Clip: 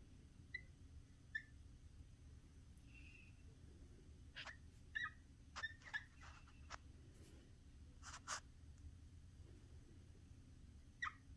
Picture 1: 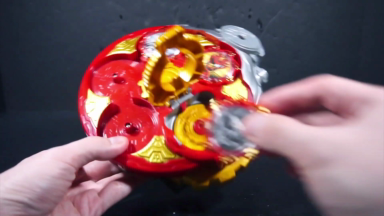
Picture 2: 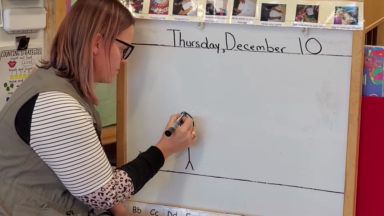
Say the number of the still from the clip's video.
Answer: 2